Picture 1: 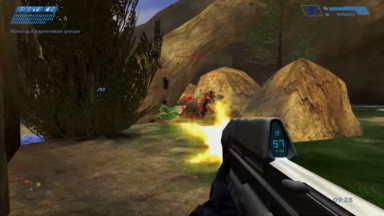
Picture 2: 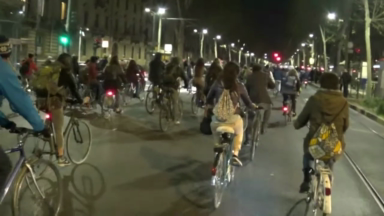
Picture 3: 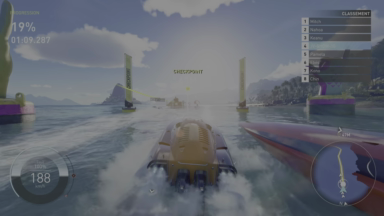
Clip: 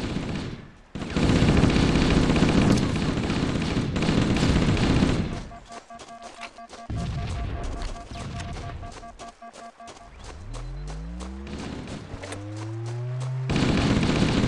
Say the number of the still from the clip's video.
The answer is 1